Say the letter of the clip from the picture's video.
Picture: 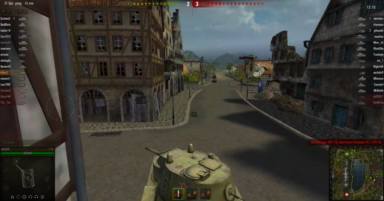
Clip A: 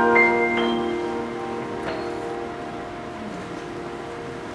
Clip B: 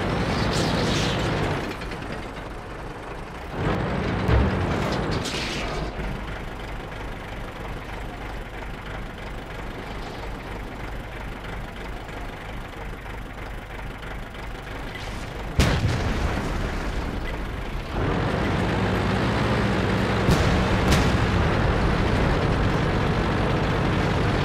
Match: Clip B